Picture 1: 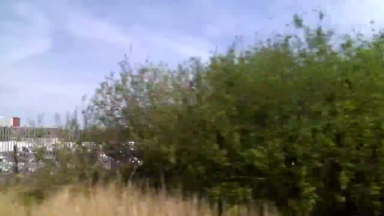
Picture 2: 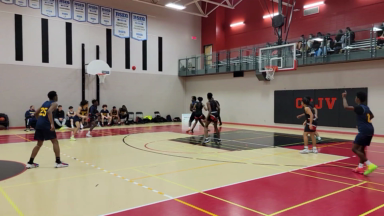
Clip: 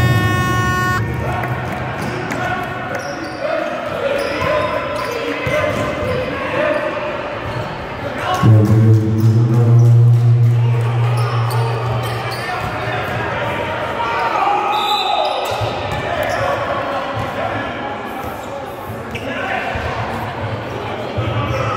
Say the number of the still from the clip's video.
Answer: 2